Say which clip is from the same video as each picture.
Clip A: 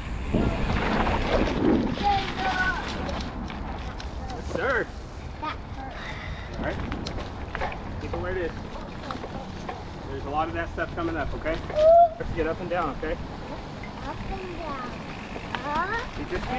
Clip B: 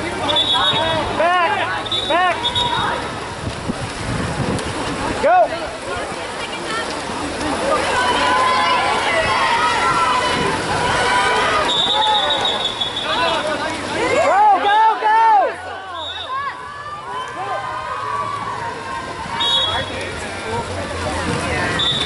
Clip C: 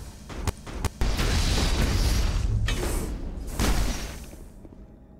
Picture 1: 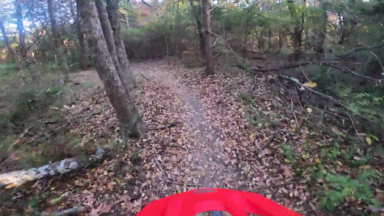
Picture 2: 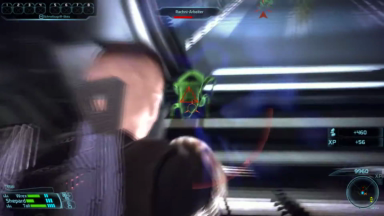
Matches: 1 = A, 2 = C